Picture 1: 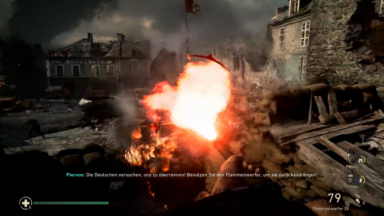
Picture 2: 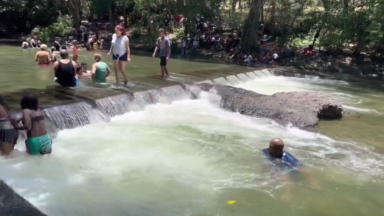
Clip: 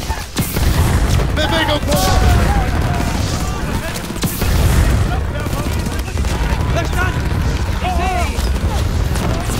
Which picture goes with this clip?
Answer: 1